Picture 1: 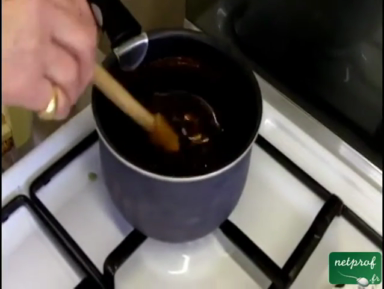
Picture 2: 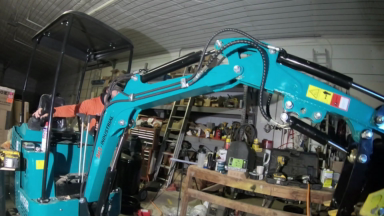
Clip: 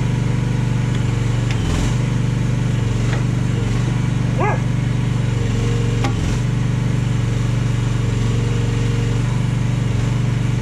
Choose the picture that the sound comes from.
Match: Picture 2